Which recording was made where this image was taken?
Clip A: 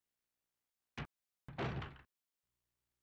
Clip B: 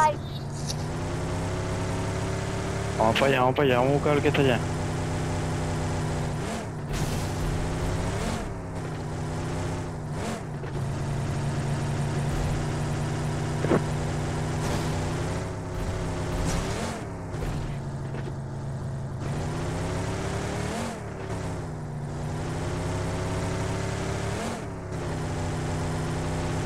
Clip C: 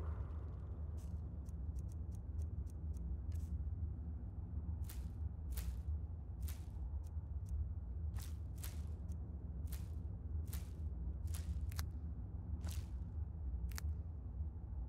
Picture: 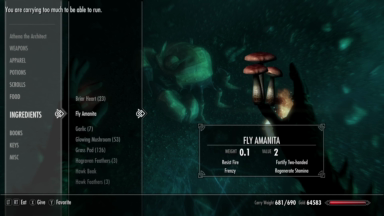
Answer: C